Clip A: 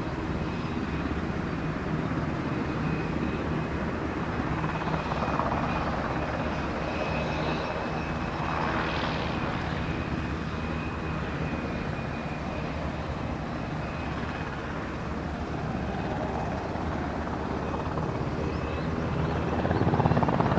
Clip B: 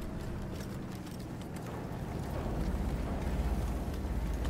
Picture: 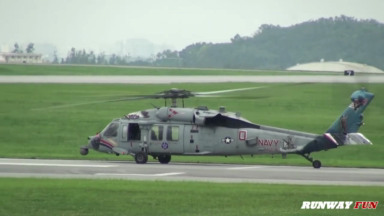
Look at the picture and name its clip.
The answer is A